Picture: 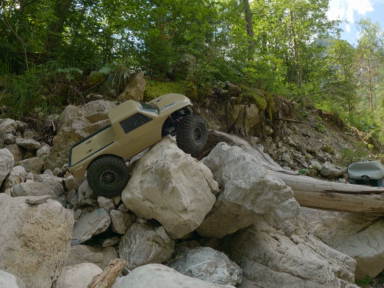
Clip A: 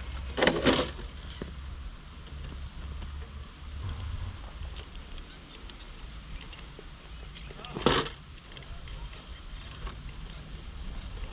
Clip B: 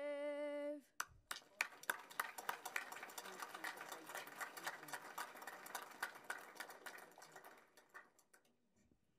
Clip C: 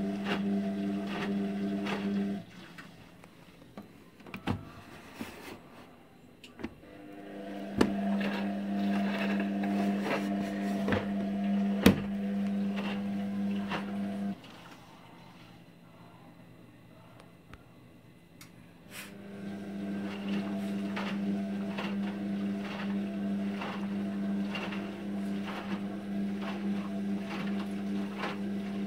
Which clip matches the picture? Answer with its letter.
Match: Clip A